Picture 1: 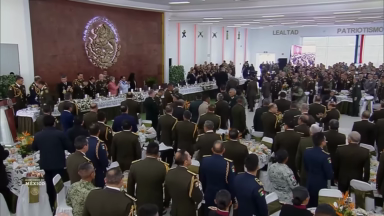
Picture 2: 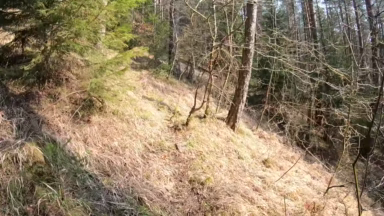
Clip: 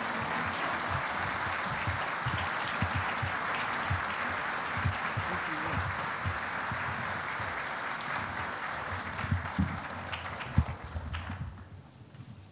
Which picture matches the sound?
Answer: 1